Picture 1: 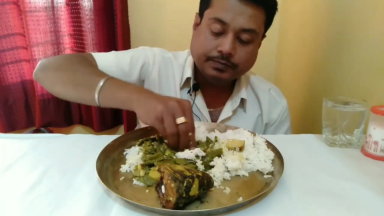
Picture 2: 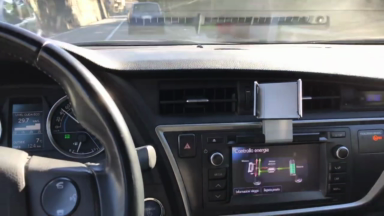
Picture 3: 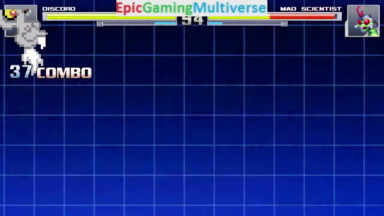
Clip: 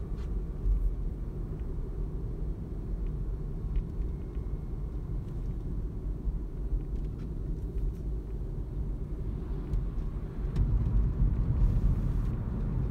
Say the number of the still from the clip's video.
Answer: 2